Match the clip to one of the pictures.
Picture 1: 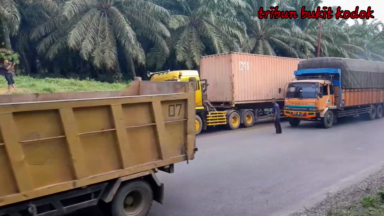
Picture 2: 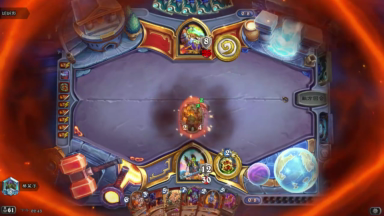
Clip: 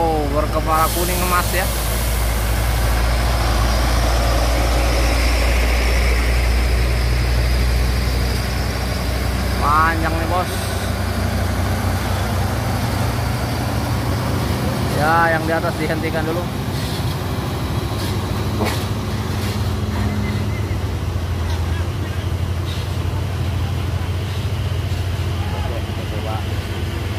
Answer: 1